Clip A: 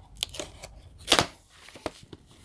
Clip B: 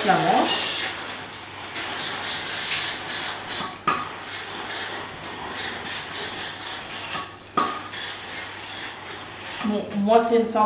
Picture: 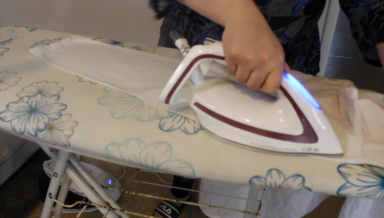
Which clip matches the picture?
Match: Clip B